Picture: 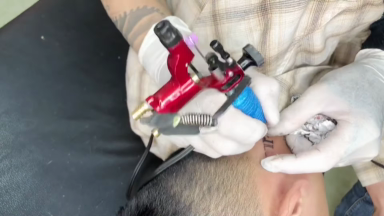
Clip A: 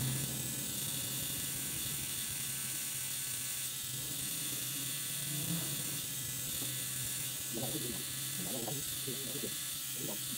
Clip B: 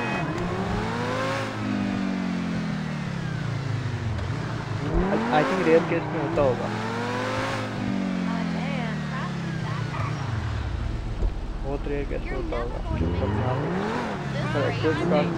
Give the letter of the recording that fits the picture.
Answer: A